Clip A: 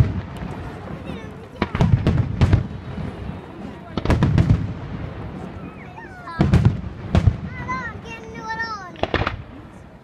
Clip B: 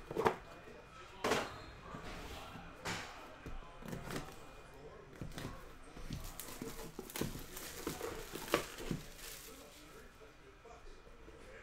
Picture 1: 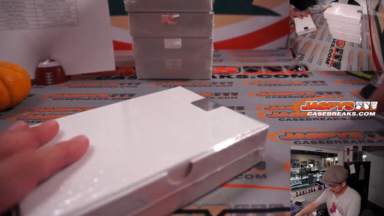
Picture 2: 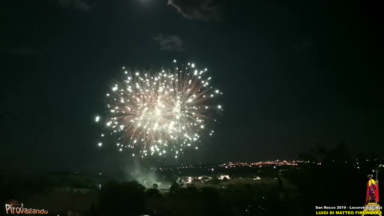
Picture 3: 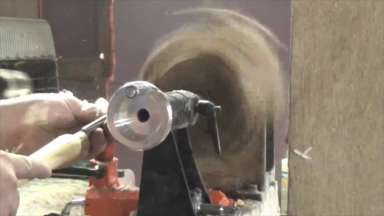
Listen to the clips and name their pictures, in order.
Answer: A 2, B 1